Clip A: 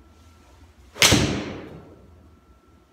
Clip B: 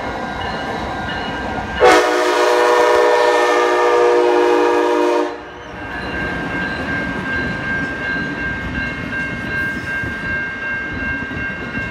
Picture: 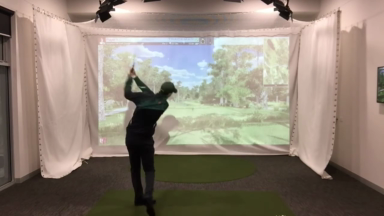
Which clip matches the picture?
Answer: A